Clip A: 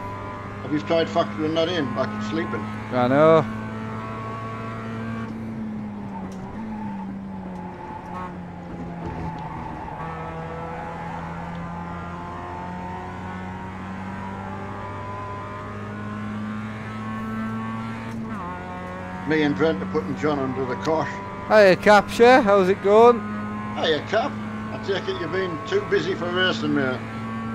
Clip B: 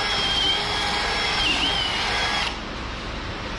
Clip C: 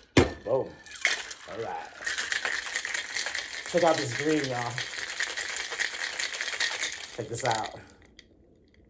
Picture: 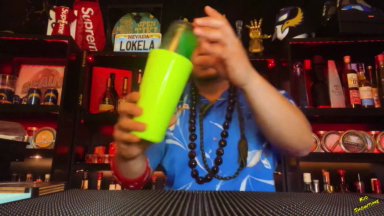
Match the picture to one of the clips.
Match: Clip C